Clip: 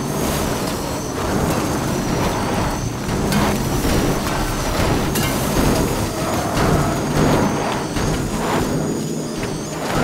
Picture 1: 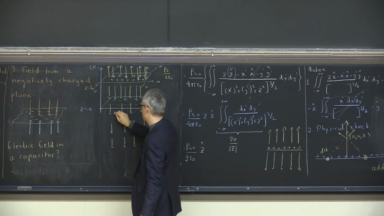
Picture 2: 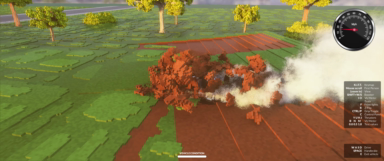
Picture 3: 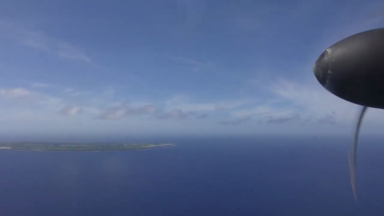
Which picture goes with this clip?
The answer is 2